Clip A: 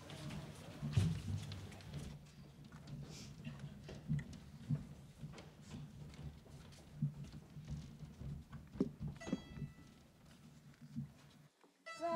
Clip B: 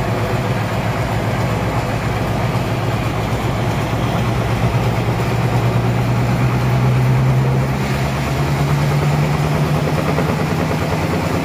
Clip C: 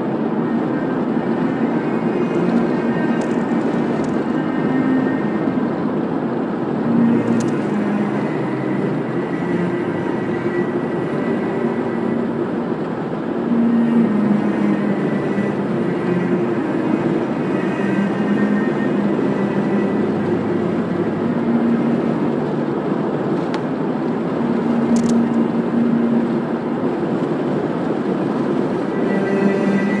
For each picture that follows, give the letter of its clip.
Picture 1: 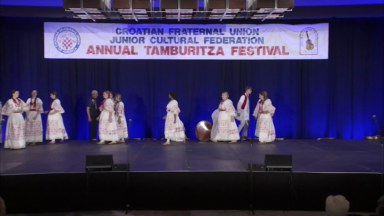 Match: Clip A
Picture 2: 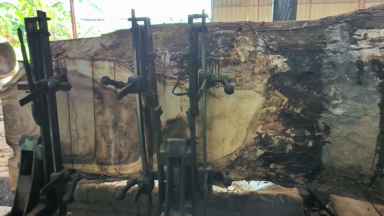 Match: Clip B